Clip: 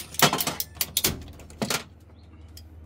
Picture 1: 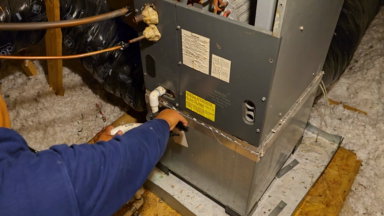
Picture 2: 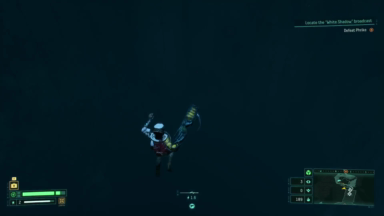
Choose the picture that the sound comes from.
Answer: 1